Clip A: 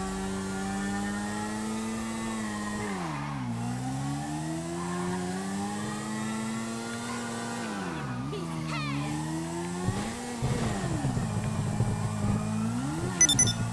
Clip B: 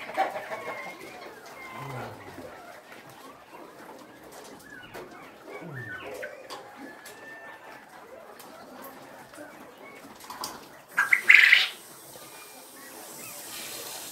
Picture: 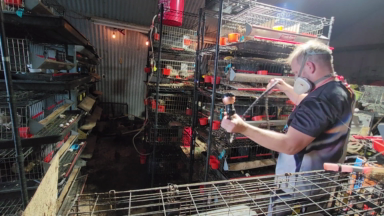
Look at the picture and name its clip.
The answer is B